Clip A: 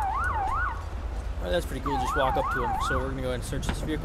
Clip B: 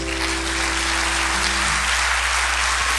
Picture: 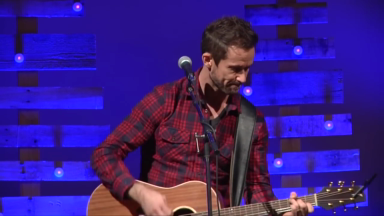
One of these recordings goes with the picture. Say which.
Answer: B